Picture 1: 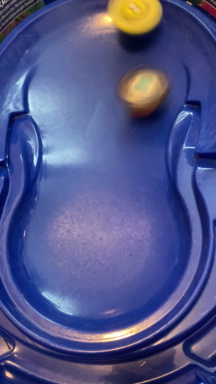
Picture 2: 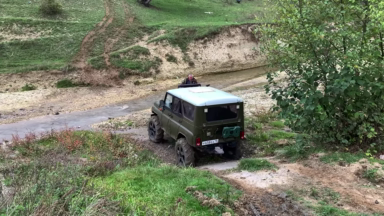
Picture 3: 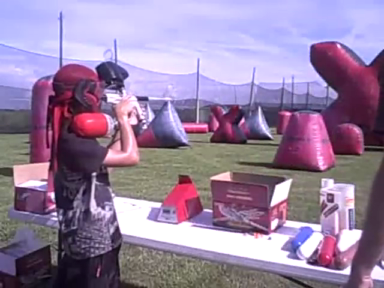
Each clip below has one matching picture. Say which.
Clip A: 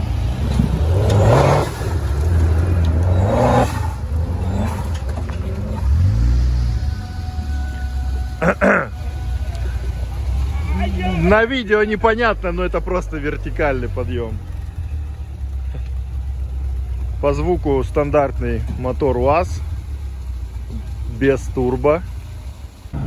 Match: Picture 2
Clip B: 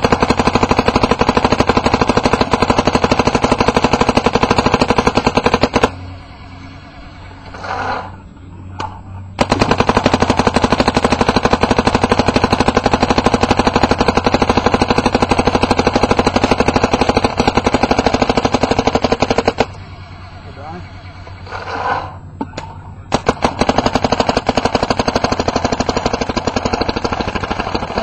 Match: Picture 3